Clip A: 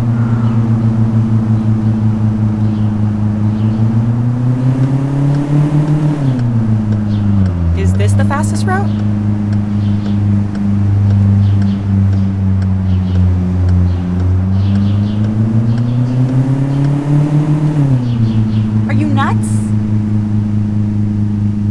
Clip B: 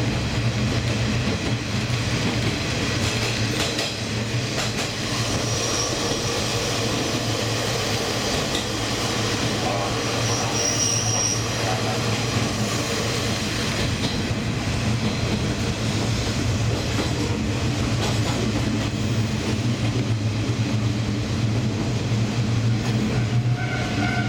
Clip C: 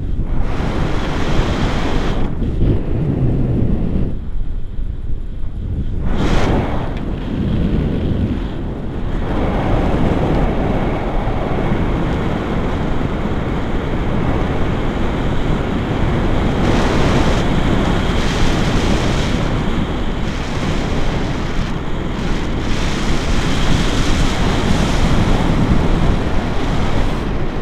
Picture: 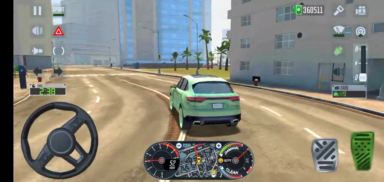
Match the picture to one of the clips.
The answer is A